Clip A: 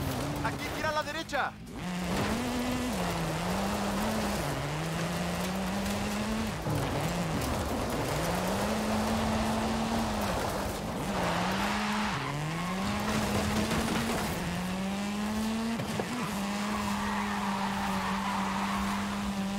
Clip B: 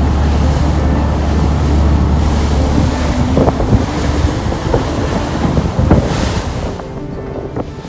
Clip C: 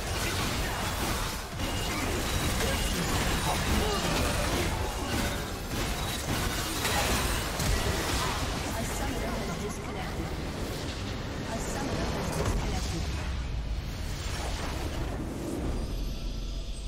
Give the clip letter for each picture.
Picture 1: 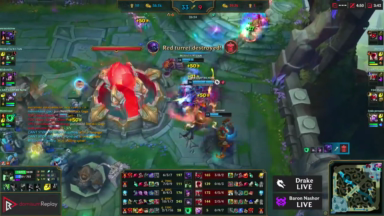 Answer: C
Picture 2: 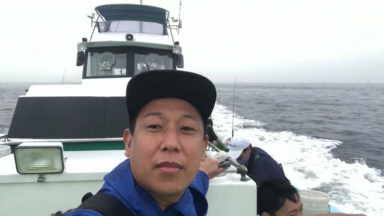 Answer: B